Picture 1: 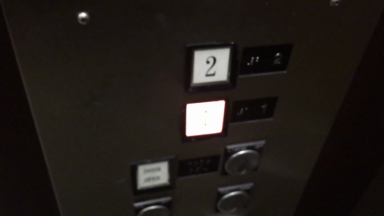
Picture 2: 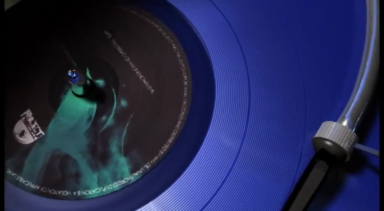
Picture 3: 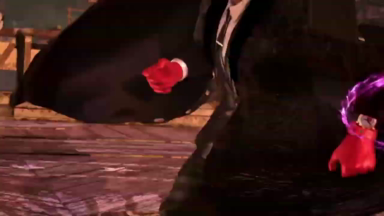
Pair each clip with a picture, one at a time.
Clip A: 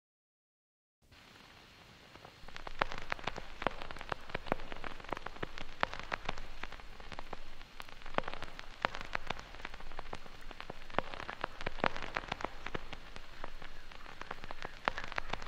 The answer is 2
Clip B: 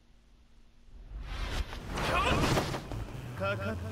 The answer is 3